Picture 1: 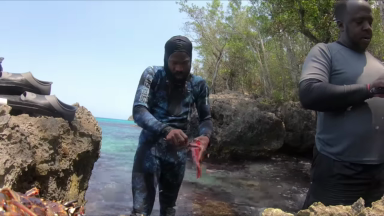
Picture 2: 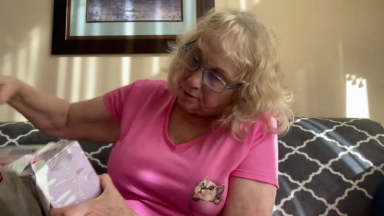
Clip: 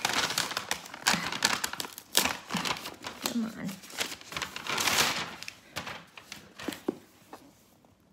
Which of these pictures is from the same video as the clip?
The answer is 2